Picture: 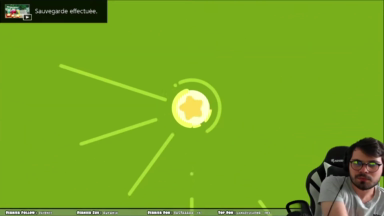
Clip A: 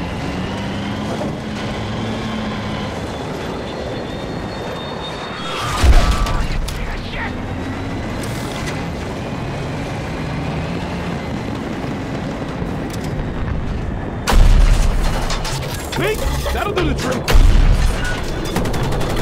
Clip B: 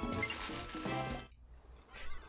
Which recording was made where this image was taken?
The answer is B